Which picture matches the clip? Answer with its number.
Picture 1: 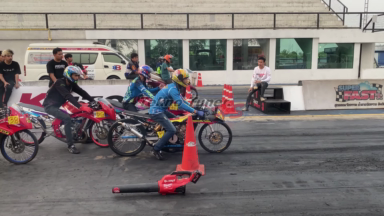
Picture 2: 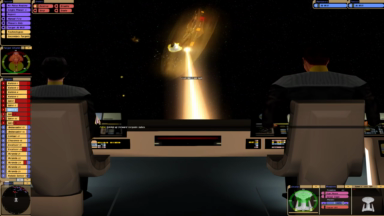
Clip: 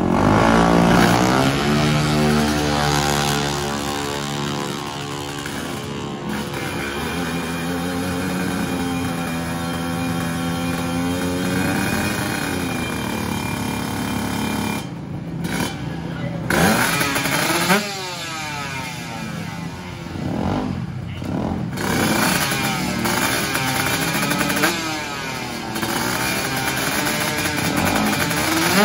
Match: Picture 1